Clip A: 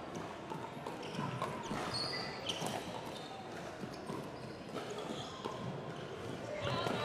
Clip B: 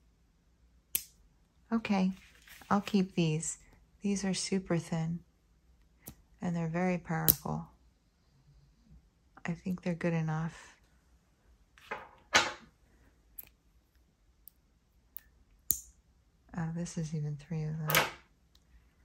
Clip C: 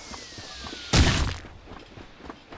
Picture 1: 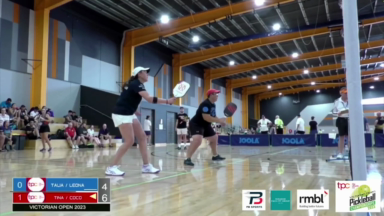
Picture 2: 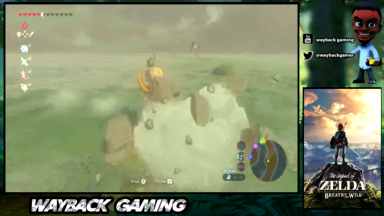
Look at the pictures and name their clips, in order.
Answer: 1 A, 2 C